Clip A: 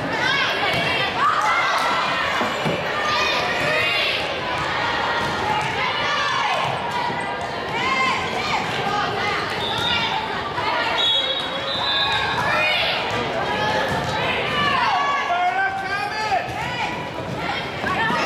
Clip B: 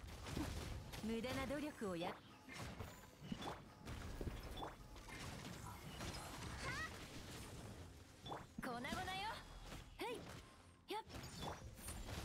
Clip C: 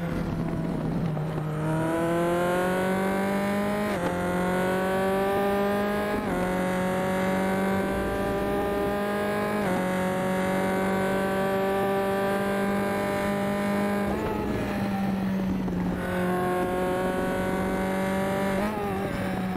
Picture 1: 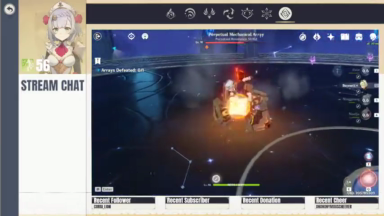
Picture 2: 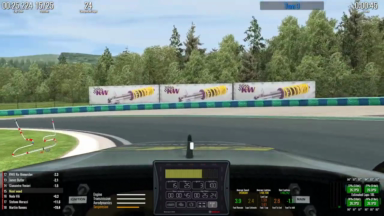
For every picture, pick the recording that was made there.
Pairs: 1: B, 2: C